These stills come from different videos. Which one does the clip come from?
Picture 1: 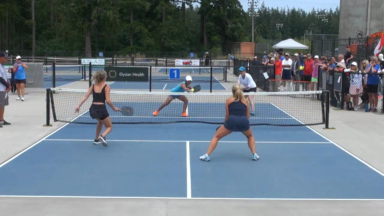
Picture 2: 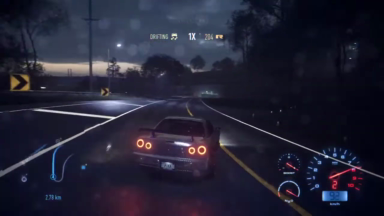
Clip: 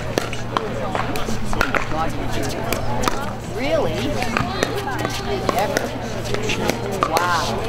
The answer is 1